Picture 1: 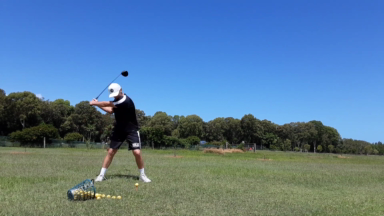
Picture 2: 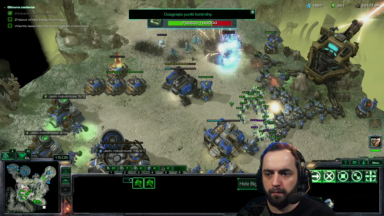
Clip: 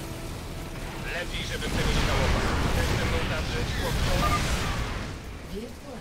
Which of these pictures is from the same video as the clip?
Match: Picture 2